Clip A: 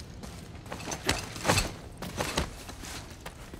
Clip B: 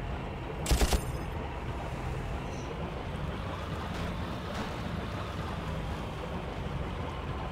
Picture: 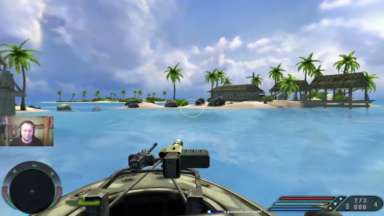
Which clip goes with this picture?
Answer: B